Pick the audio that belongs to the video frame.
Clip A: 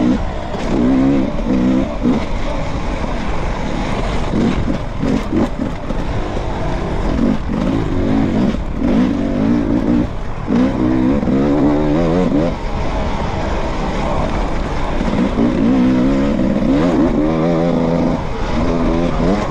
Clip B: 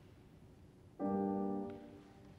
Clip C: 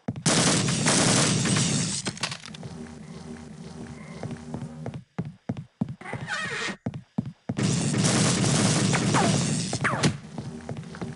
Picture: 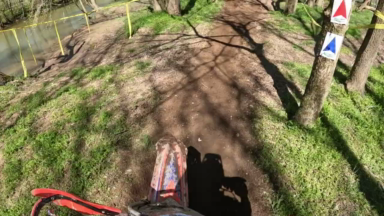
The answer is A